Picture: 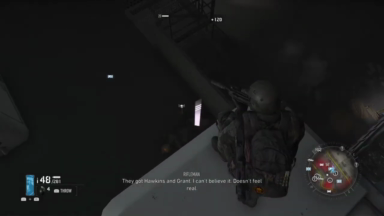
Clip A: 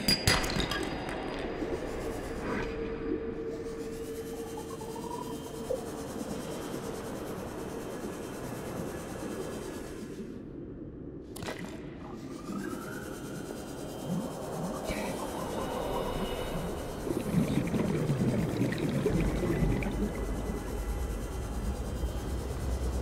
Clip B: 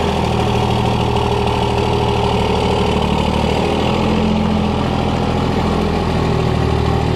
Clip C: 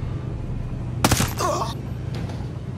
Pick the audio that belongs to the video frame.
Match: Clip C